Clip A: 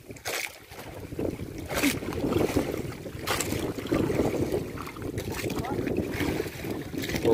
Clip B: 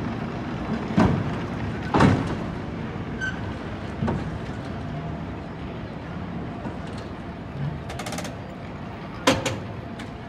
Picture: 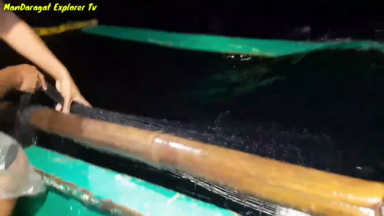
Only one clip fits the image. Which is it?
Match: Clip A